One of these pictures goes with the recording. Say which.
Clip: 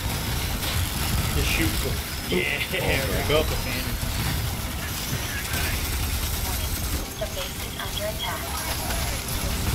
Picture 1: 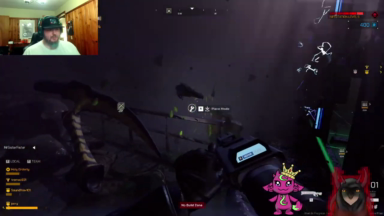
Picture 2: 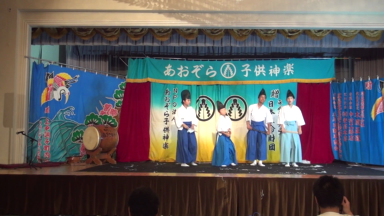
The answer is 1